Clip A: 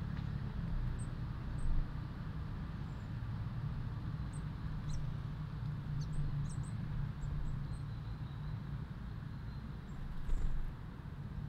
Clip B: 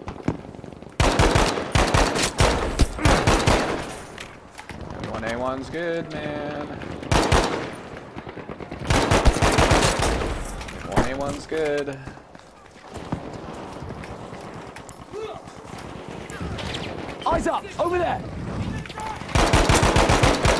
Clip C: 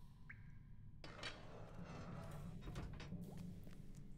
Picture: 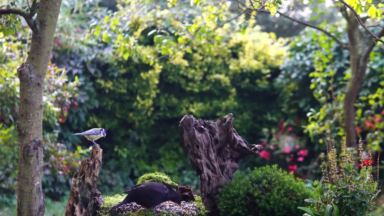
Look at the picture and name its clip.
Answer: A